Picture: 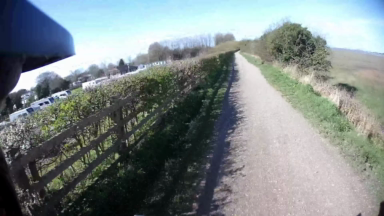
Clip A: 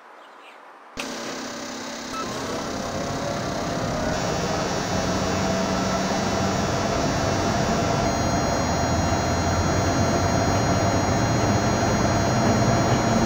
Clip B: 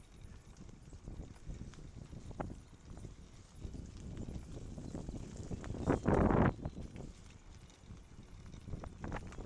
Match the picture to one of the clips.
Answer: B